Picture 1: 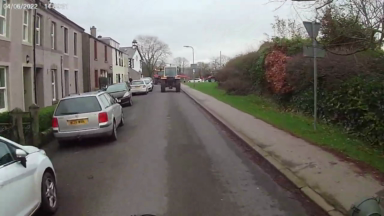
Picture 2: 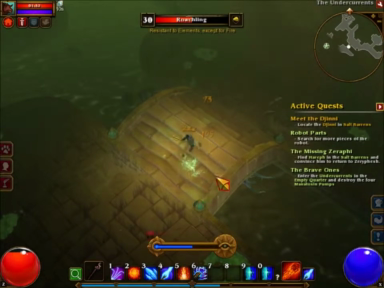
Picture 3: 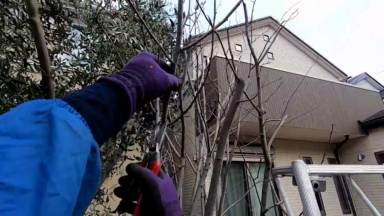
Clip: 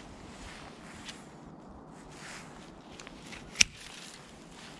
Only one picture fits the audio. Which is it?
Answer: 3